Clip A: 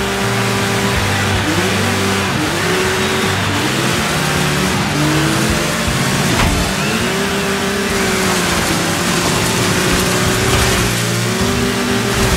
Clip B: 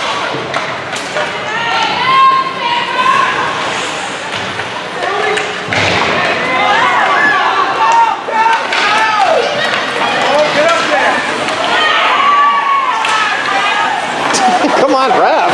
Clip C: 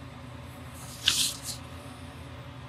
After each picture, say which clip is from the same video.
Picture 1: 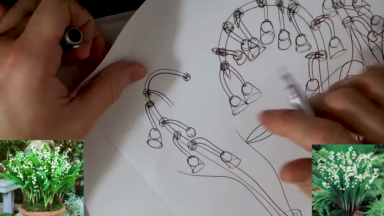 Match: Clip C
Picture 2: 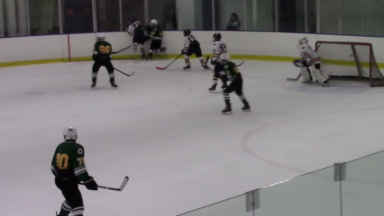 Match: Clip B